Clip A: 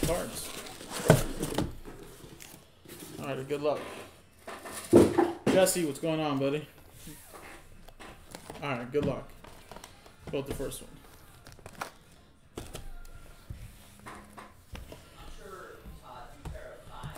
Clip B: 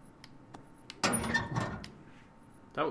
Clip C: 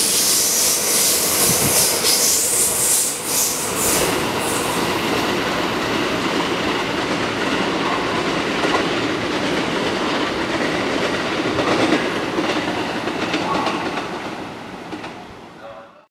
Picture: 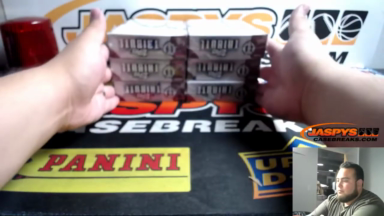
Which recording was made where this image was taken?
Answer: A